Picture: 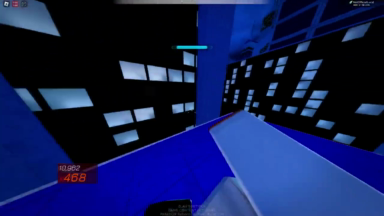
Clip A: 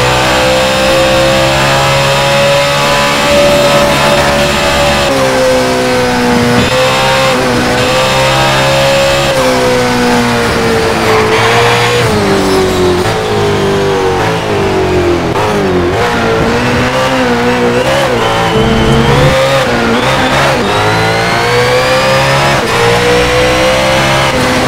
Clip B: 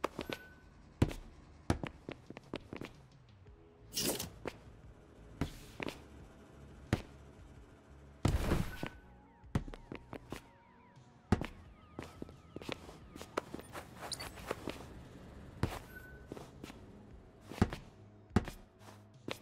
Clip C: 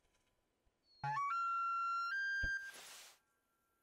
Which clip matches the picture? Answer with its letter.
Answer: B